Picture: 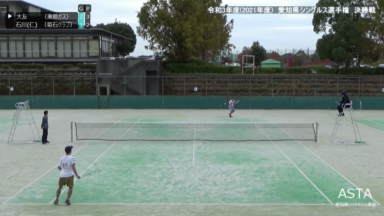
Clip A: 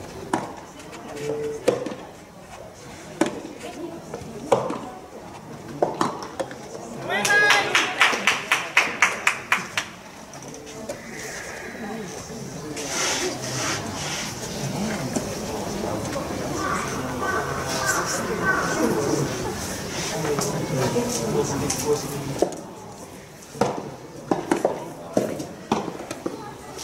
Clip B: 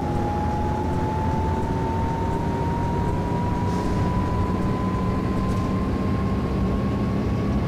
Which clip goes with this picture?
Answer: A